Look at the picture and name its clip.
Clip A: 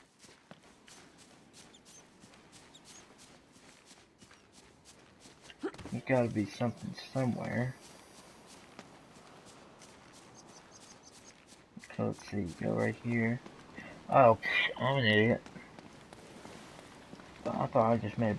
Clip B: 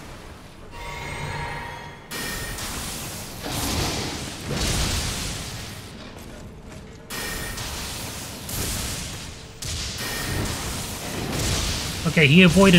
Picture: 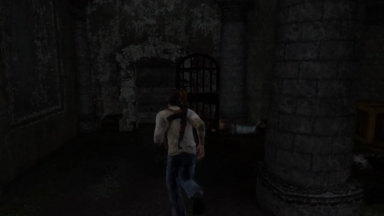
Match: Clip A